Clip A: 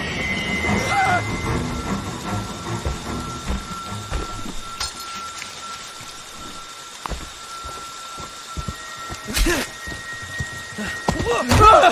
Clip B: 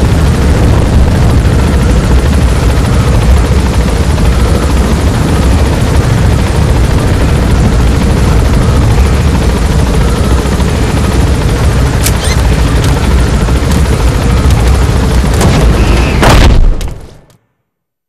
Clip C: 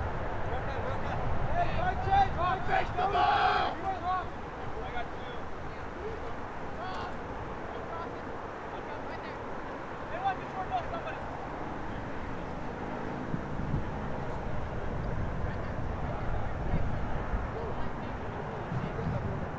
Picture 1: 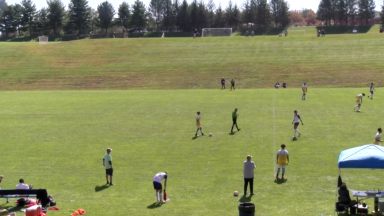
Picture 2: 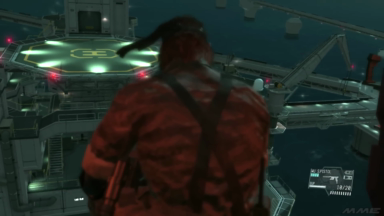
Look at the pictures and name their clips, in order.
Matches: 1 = C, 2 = B